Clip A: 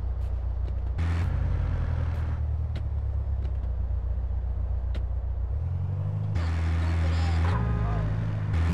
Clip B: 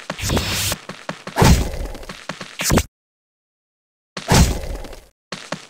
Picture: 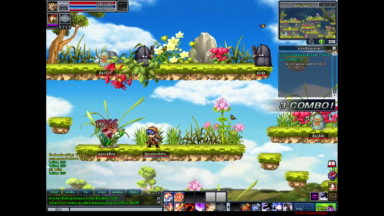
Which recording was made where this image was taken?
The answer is B